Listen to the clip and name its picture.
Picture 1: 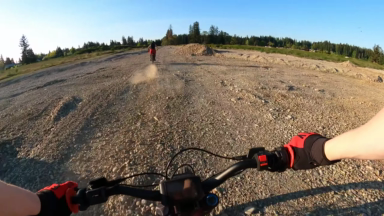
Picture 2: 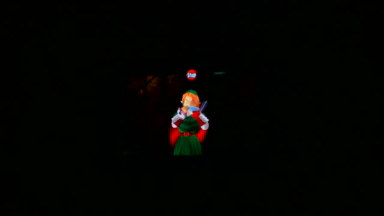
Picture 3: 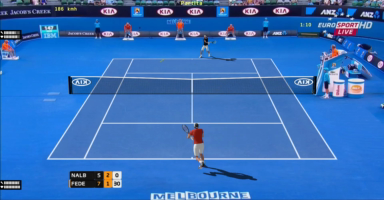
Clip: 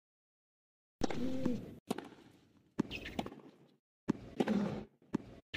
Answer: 3